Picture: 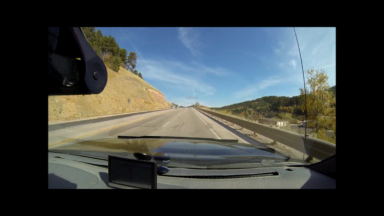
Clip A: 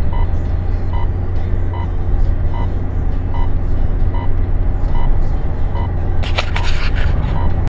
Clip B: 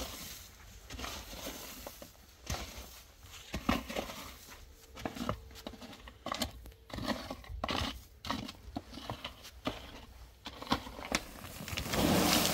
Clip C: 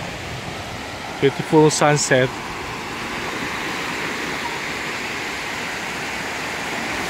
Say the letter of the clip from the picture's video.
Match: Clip A